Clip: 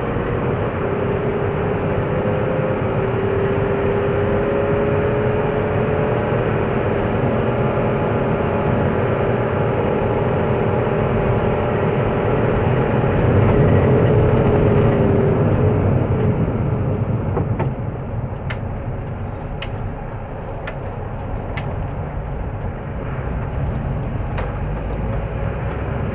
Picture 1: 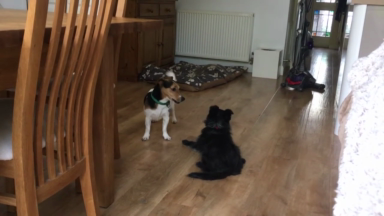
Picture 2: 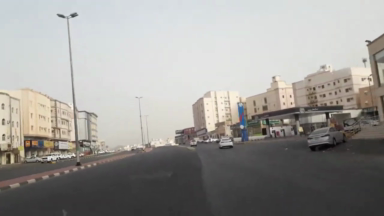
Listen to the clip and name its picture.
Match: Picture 2